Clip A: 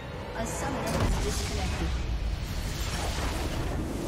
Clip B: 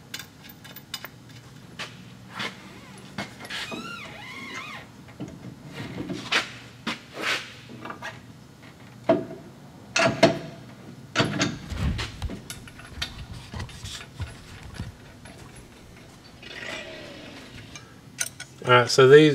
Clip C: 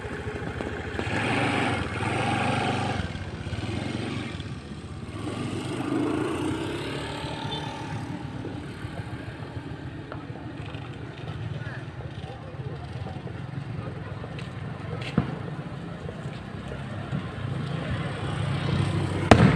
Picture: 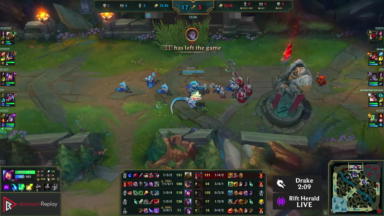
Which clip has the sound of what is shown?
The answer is A